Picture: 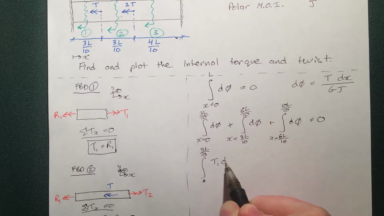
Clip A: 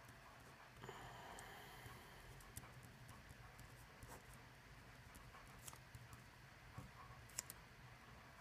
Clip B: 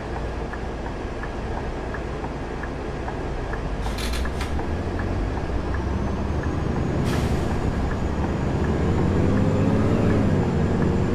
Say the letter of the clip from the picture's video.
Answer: A